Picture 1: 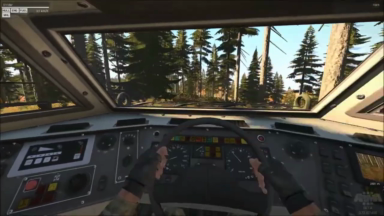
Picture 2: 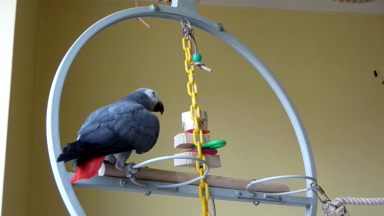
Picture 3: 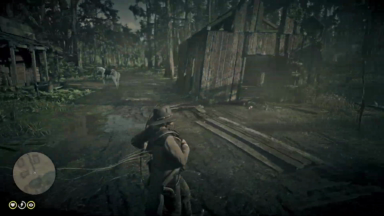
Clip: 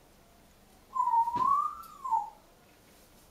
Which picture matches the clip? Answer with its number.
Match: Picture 2